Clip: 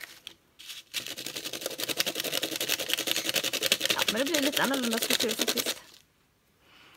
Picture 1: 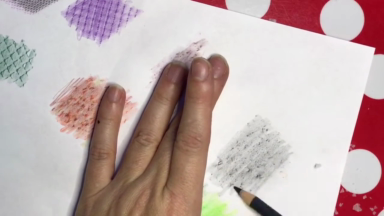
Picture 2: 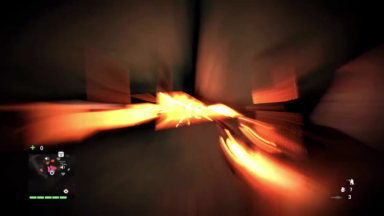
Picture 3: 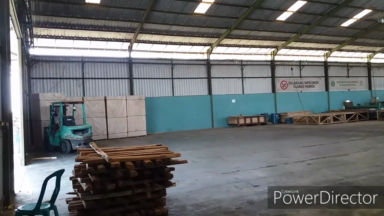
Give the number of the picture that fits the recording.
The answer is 1